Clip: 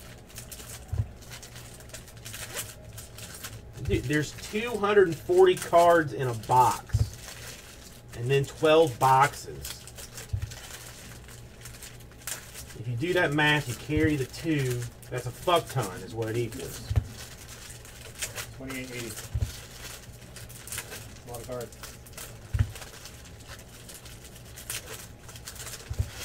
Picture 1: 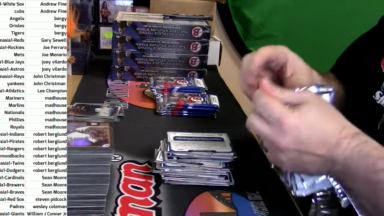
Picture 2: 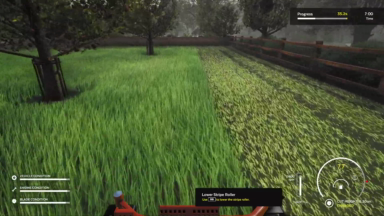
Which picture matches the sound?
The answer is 1